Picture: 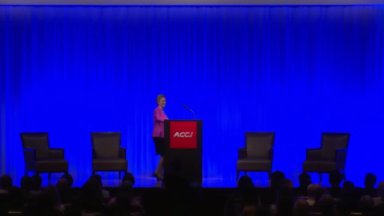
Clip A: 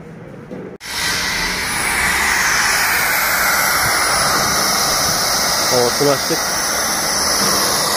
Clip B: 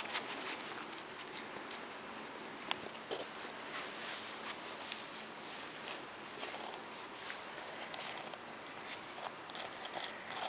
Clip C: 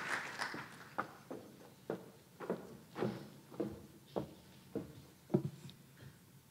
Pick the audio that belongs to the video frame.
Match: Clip C